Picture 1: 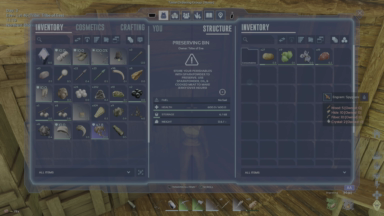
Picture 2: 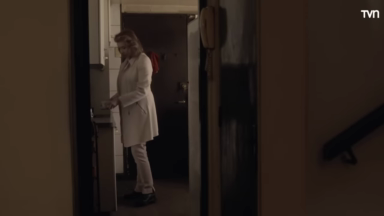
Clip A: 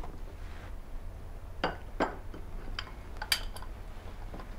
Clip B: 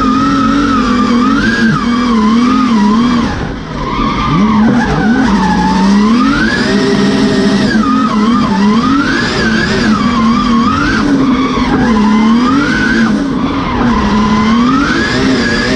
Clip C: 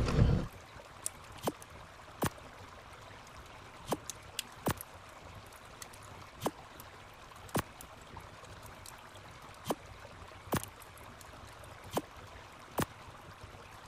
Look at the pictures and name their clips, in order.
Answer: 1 C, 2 A